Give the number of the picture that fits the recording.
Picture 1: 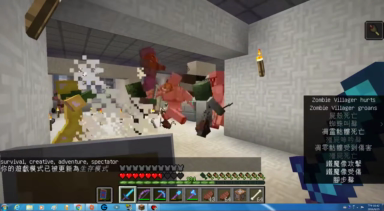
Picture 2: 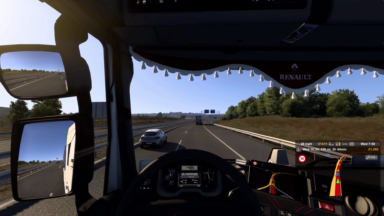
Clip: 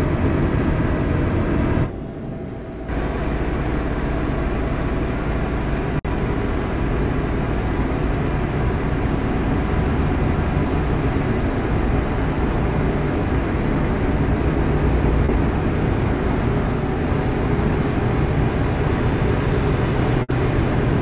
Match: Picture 2